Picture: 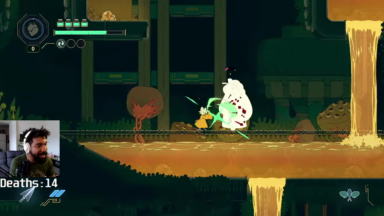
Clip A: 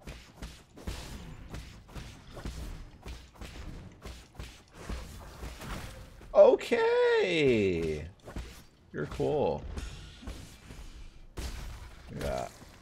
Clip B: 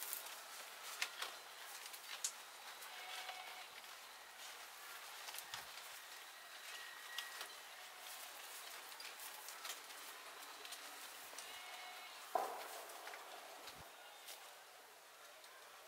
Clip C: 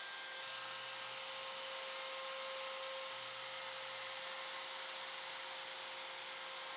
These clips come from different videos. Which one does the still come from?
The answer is A